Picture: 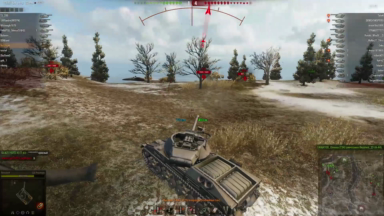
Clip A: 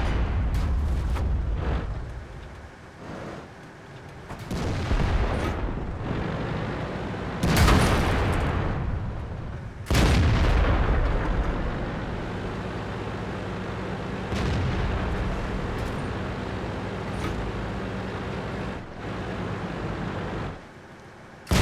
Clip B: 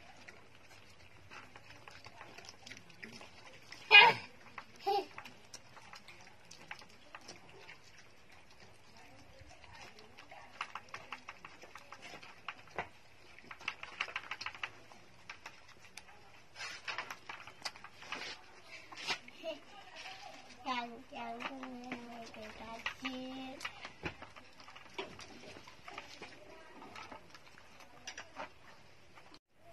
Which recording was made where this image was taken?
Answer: A